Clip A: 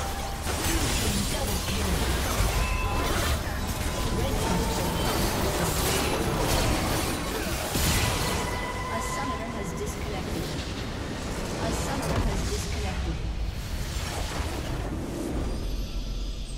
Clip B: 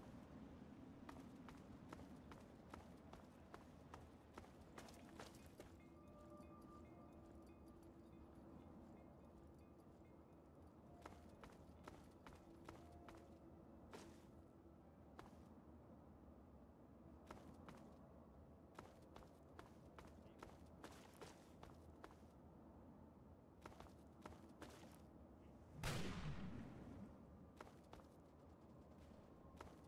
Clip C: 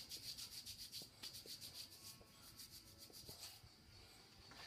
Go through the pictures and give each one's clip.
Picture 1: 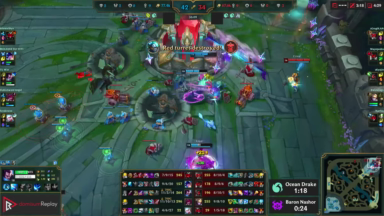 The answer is A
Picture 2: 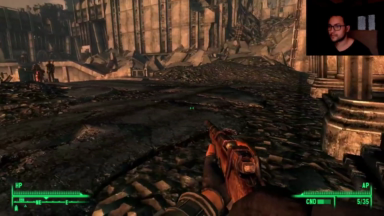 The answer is B